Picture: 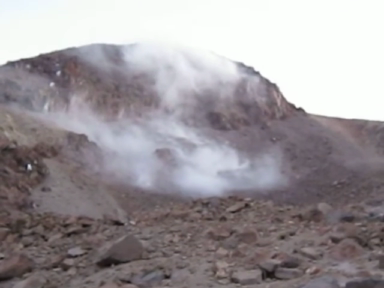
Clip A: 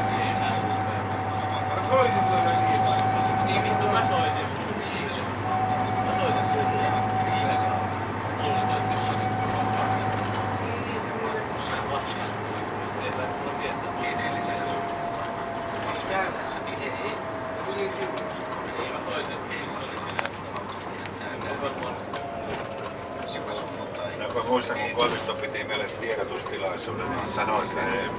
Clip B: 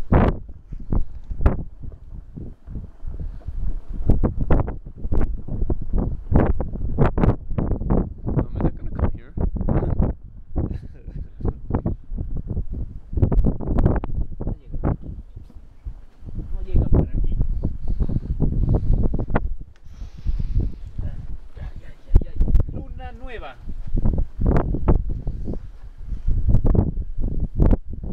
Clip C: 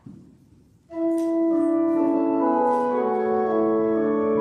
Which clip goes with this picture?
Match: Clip B